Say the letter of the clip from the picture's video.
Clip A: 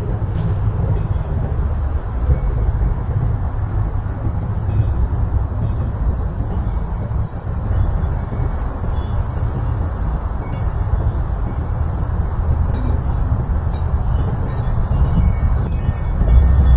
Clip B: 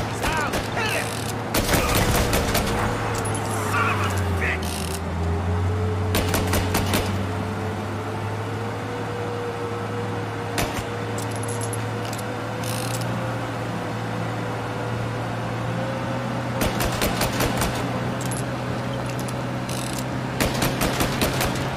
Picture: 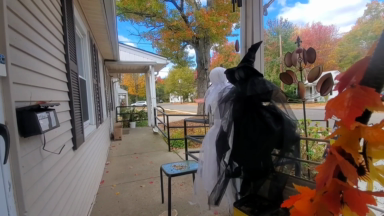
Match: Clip A